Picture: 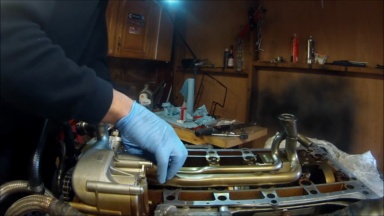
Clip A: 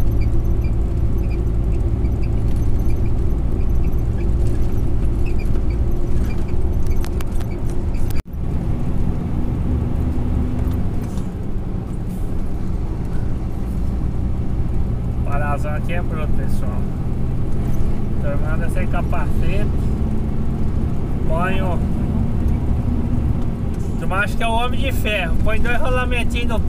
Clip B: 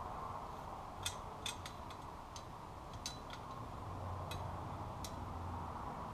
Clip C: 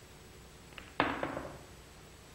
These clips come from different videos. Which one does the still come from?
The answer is B